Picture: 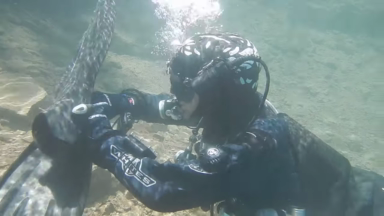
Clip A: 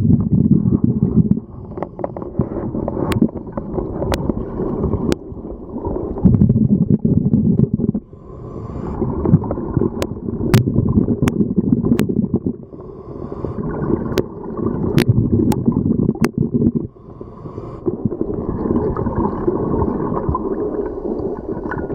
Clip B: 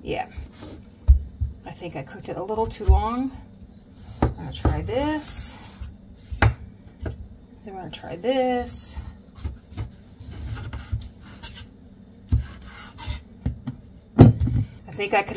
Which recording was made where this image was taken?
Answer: A